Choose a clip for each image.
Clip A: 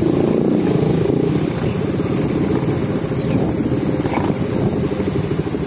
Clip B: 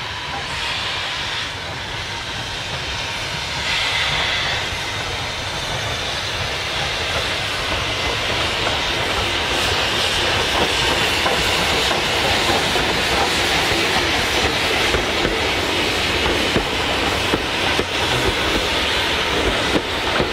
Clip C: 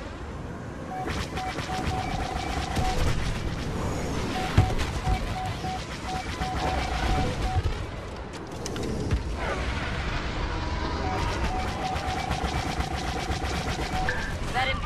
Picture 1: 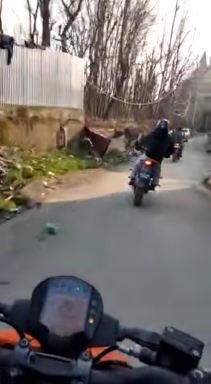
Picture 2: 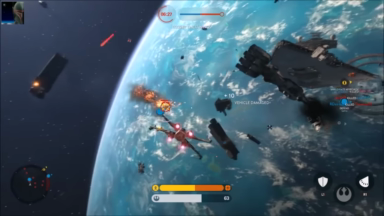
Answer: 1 A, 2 C